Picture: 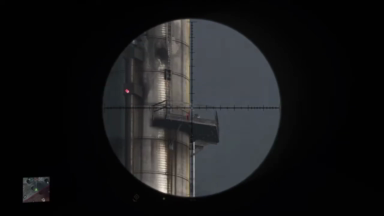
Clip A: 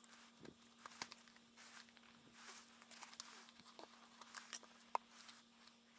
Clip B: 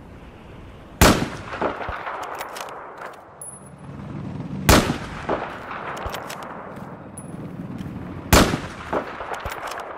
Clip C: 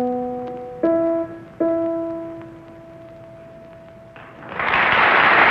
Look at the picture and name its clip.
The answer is B